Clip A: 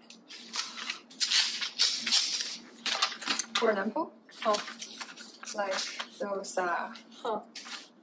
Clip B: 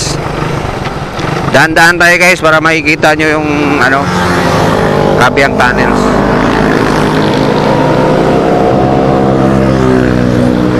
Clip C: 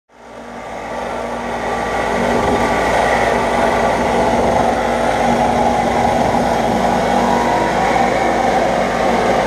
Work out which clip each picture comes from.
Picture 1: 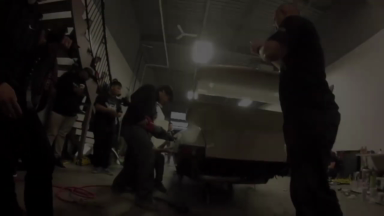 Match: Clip C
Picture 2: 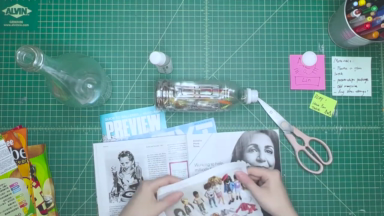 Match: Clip A